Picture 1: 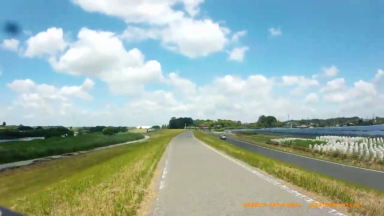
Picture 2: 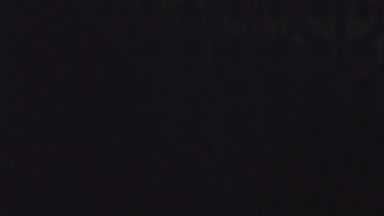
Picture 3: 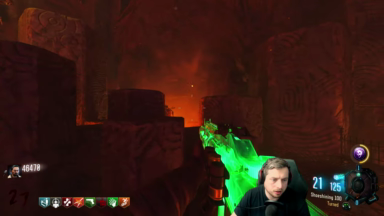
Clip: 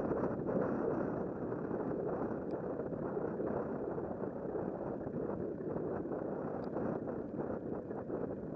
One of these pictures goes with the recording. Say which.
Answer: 1